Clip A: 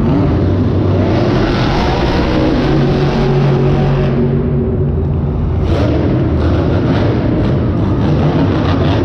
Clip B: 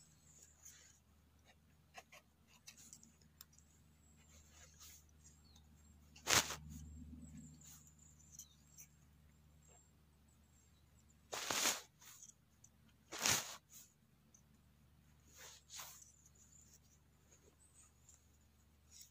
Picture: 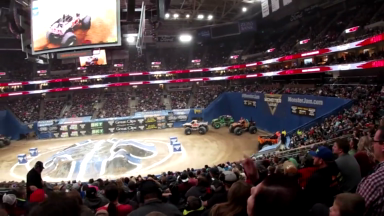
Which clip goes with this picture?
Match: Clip A